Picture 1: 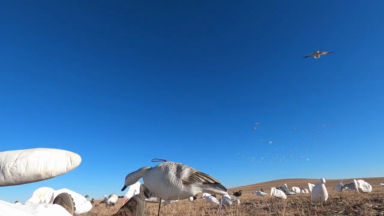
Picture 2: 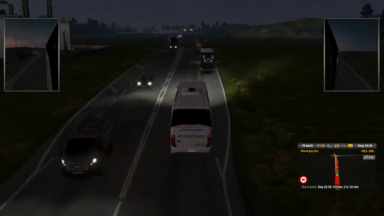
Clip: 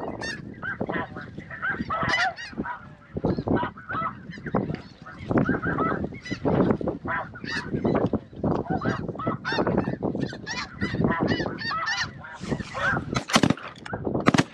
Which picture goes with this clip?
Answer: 1